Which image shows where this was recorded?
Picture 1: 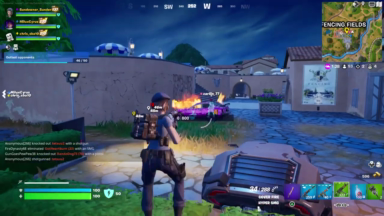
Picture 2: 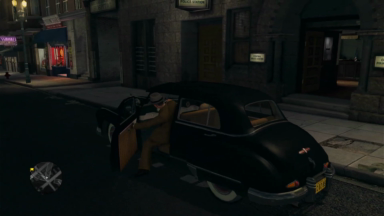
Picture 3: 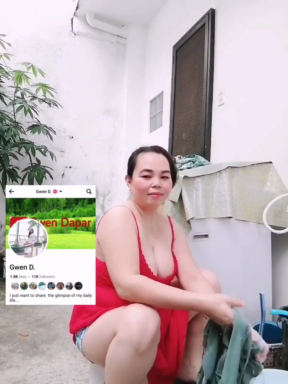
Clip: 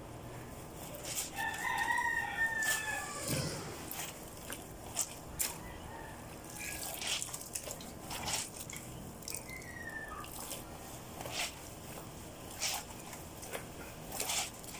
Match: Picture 3